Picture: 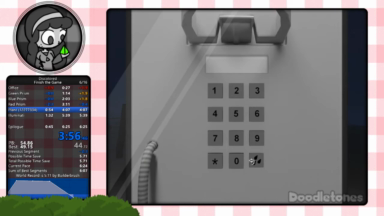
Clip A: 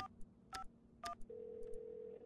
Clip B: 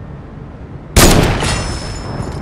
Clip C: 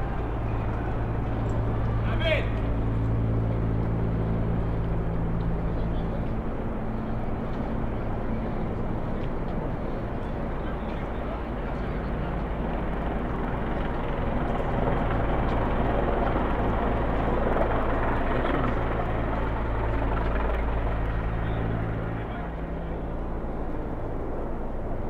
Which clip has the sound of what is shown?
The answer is A